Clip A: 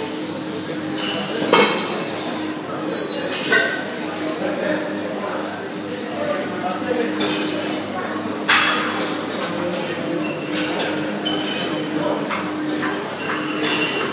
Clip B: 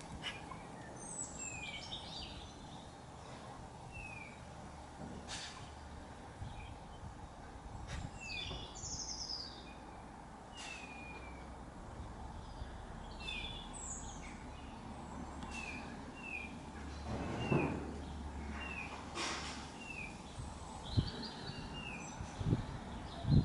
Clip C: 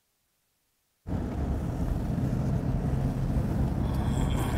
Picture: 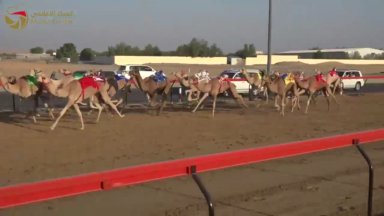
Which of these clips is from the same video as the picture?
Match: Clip C